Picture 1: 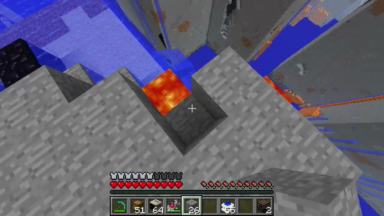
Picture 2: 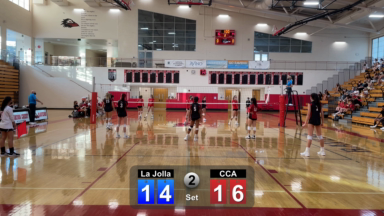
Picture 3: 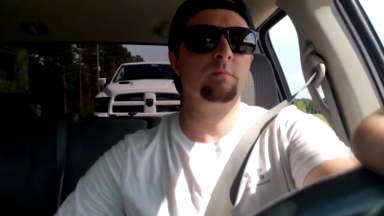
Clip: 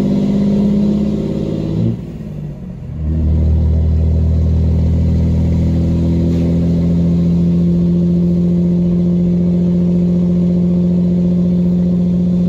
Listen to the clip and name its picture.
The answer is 3